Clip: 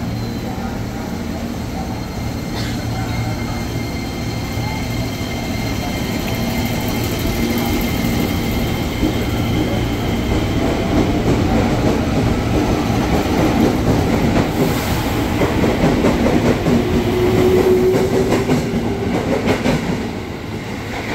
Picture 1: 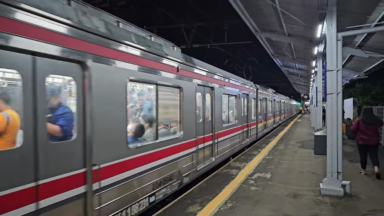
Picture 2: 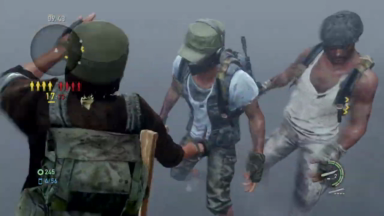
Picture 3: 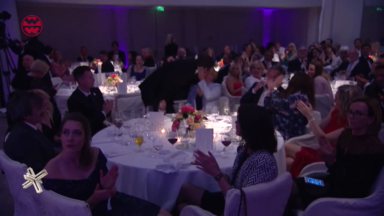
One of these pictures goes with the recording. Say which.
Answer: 1